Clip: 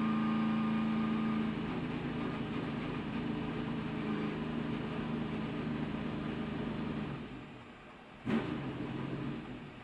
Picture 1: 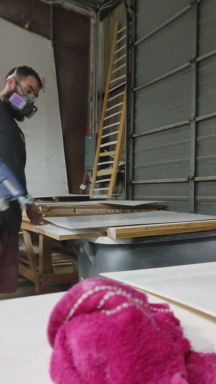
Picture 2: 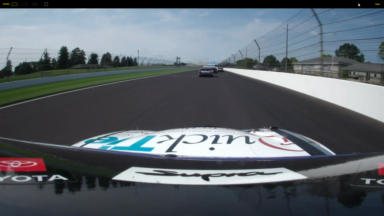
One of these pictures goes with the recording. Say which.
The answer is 2